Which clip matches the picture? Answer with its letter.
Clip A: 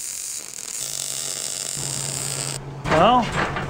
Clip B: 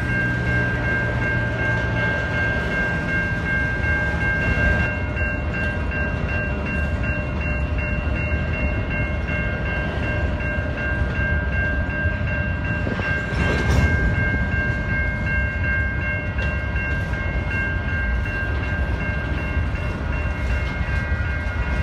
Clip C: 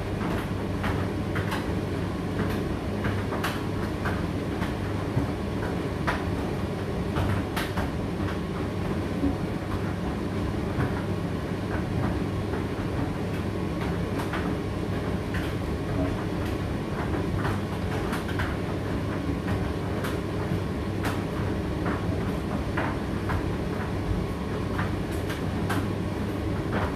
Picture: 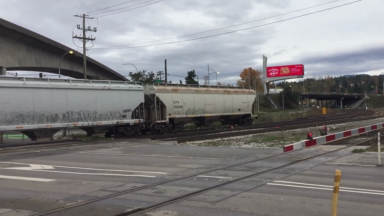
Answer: B